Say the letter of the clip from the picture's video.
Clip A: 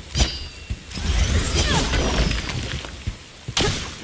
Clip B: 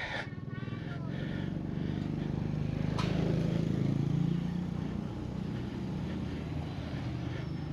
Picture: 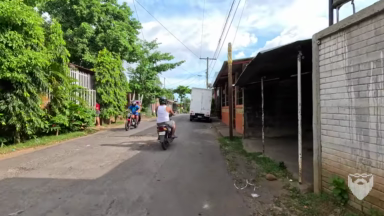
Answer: B